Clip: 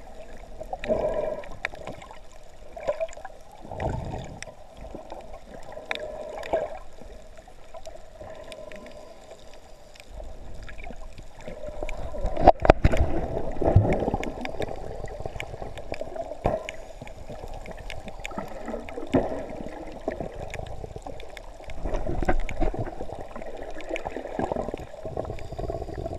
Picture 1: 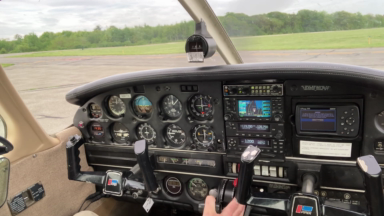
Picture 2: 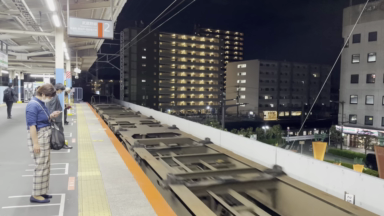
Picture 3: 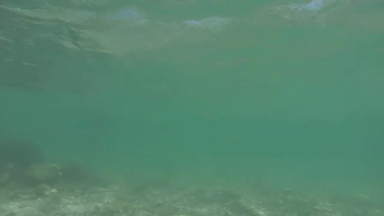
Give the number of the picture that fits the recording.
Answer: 3